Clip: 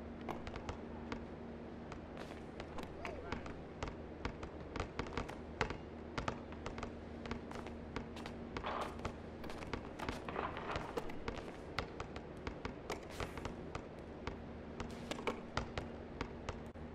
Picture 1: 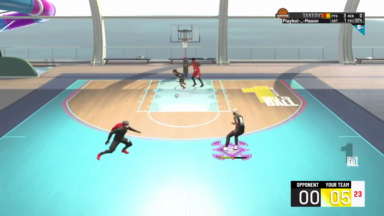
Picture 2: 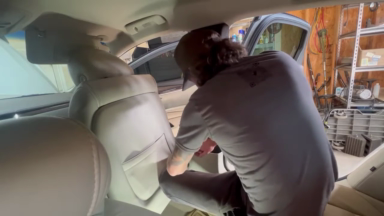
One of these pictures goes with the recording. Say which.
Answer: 1